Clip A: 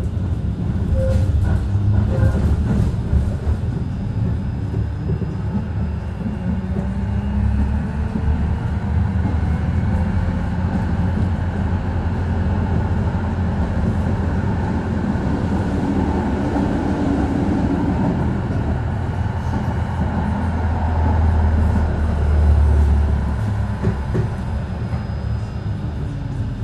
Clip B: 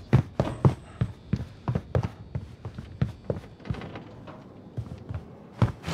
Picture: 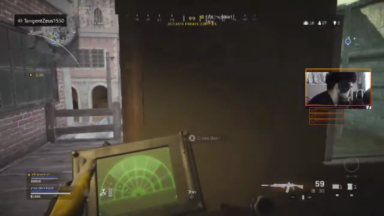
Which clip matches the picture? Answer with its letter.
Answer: B